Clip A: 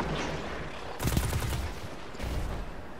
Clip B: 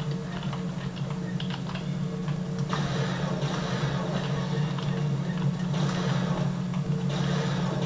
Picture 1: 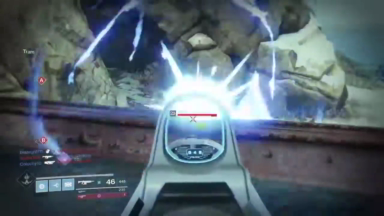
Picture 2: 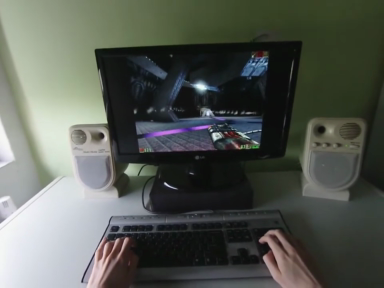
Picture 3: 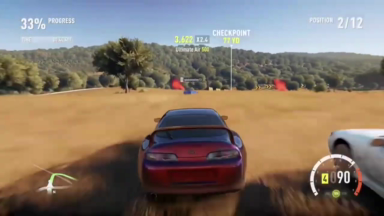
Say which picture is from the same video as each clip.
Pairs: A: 1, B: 2